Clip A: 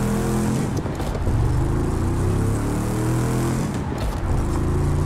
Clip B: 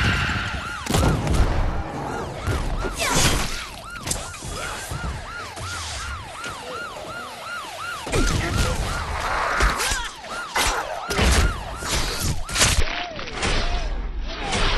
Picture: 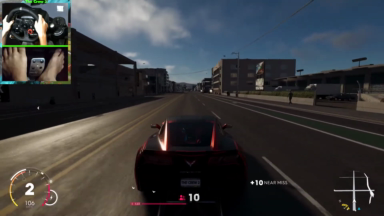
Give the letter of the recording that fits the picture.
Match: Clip A